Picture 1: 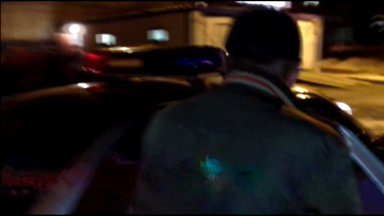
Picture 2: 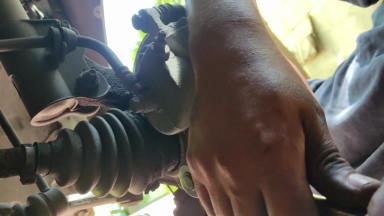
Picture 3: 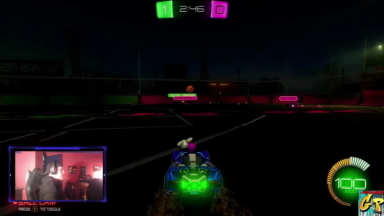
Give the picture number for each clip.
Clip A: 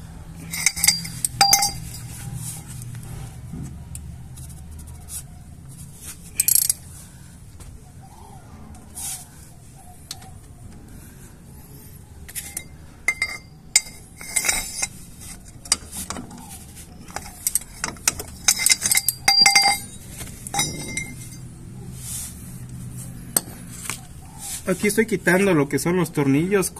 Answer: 2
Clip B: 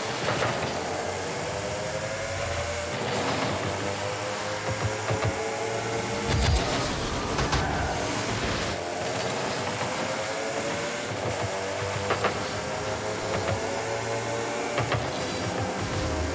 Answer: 3